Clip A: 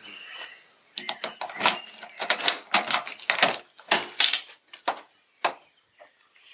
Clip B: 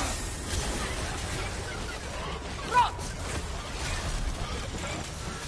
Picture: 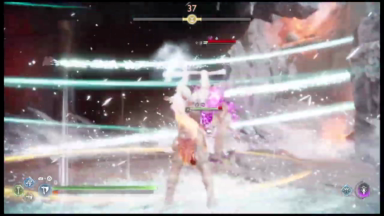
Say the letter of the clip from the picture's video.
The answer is B